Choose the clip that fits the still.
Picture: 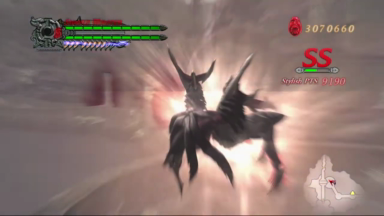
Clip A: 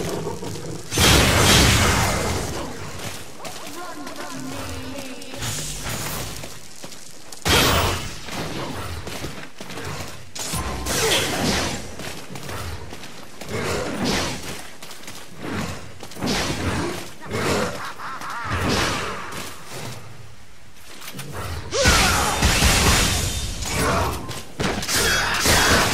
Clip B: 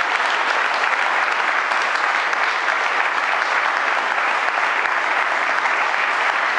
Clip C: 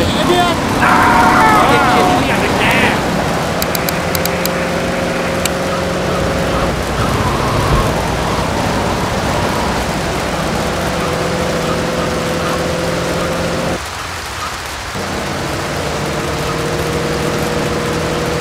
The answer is A